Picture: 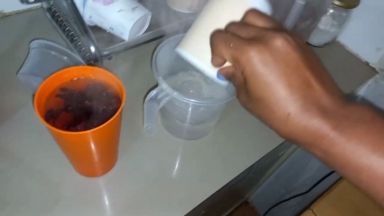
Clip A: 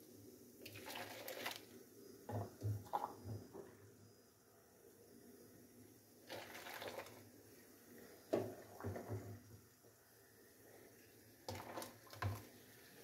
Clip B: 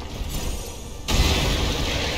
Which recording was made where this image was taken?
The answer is A